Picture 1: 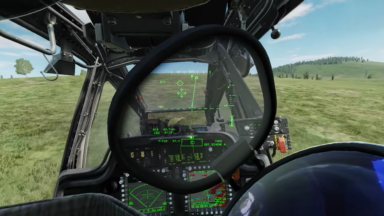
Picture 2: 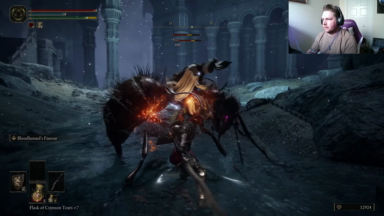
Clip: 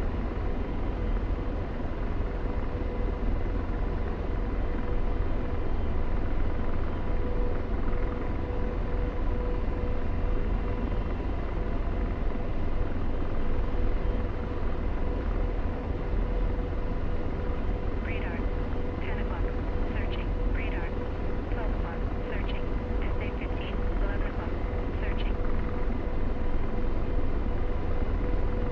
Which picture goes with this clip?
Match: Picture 1